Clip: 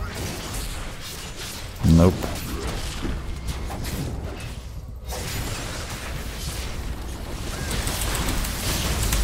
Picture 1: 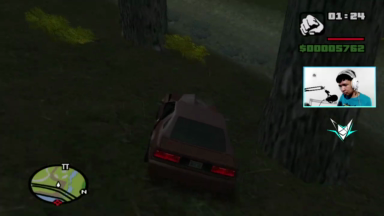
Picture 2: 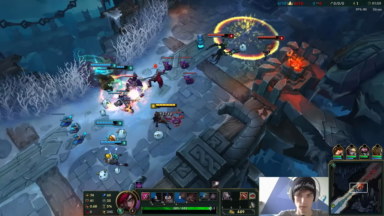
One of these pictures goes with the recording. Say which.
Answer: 2